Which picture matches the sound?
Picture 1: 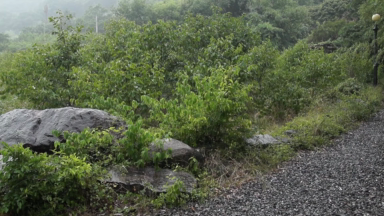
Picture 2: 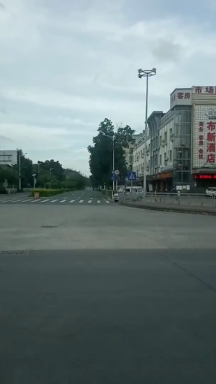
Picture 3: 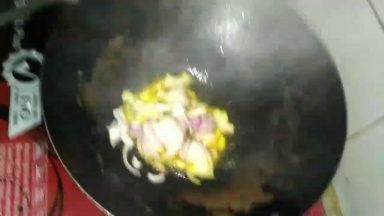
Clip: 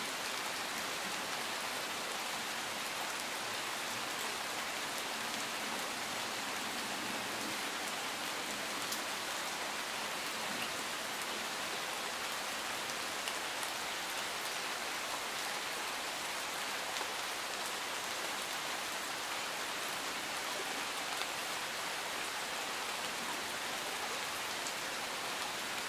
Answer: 1